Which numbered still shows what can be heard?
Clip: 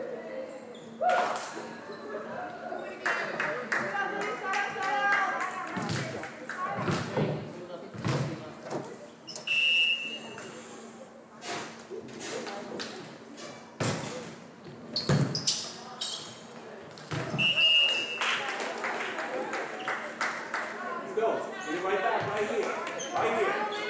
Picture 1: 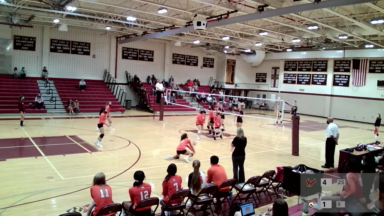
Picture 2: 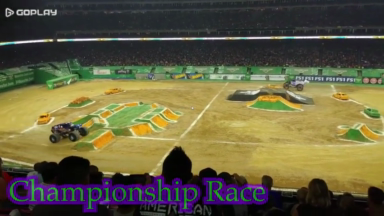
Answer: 1